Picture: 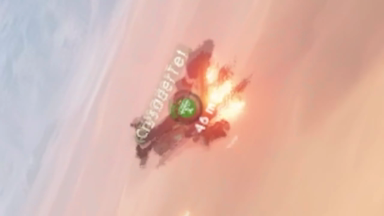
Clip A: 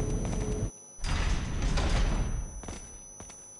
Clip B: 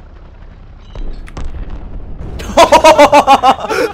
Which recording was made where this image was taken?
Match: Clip B